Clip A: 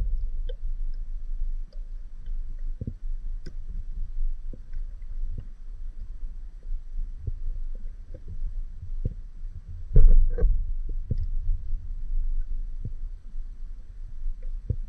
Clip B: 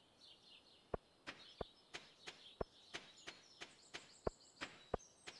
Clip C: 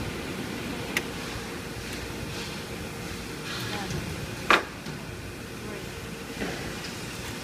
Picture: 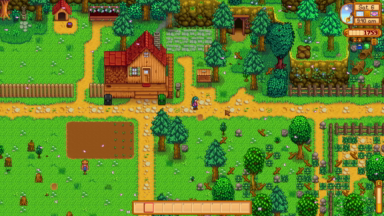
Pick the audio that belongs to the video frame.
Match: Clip B